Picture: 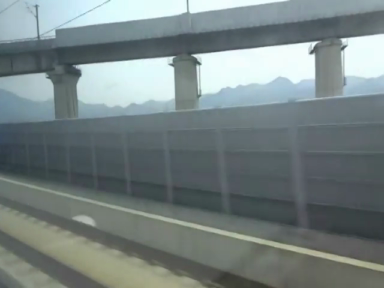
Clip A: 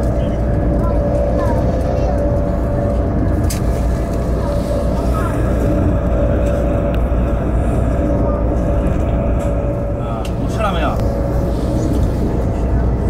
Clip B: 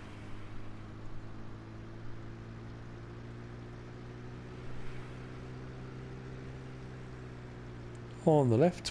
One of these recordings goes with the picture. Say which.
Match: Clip A